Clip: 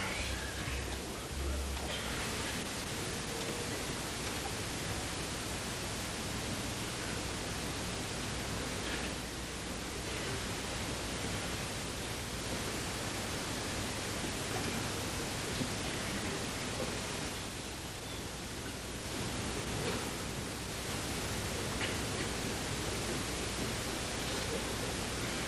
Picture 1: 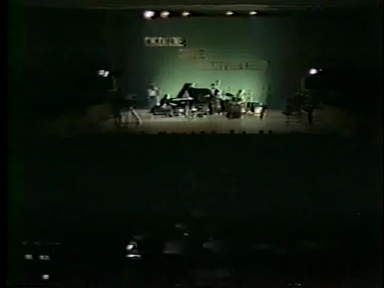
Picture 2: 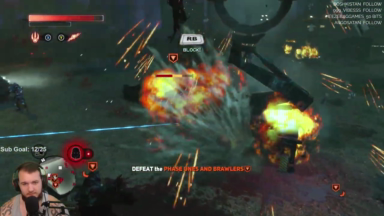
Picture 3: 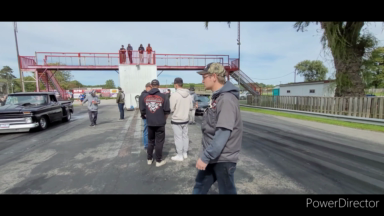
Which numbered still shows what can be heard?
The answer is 1